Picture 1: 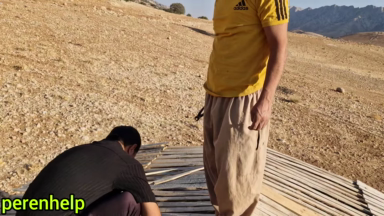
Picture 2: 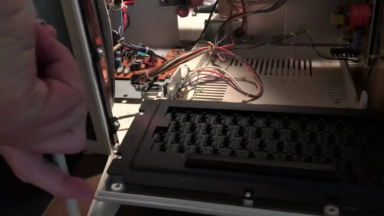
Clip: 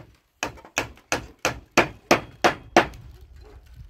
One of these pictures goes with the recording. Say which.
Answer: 1